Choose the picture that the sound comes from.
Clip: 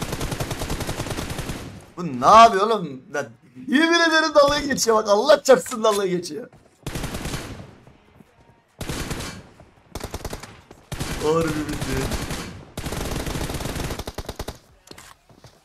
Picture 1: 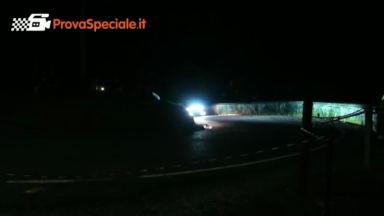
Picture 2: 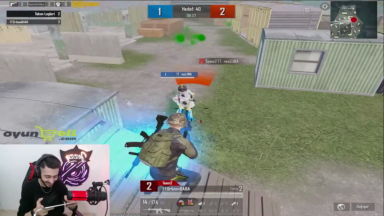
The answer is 2